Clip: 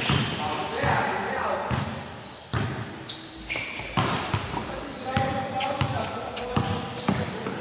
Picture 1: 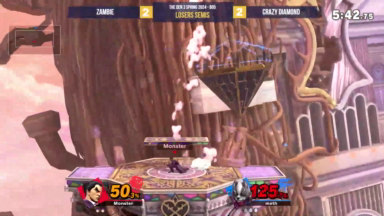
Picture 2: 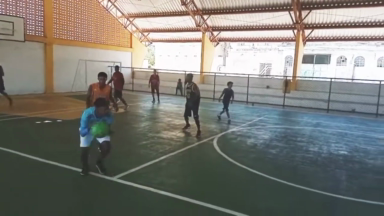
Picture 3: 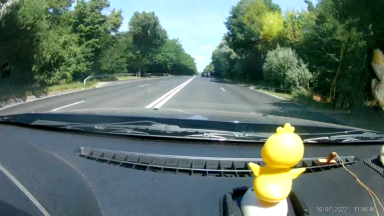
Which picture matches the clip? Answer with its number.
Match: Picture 2